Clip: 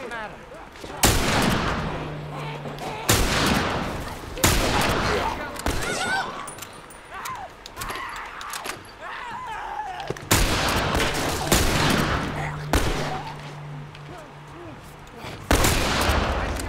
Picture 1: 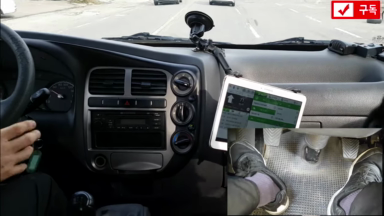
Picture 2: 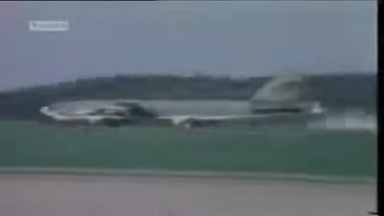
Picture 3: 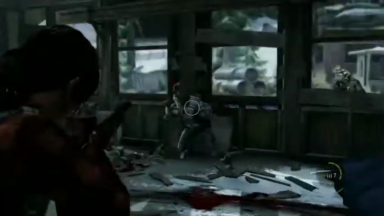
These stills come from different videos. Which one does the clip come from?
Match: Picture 3